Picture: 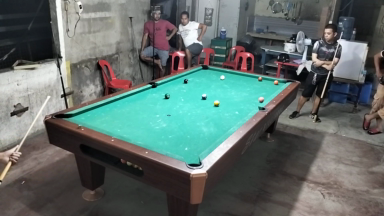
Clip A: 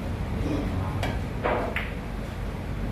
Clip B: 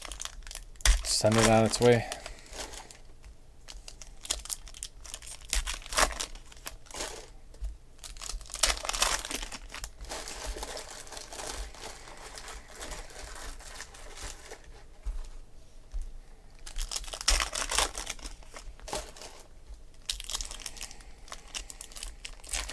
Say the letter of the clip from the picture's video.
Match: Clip A